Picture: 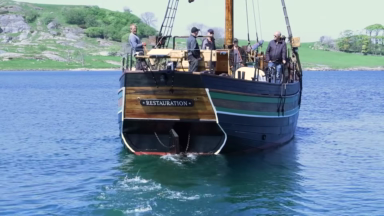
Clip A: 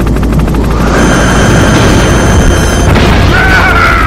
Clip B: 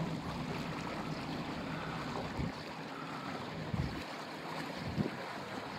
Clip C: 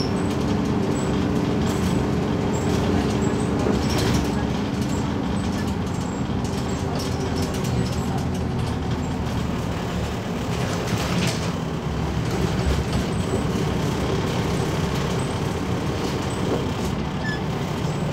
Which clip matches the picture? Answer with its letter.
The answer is B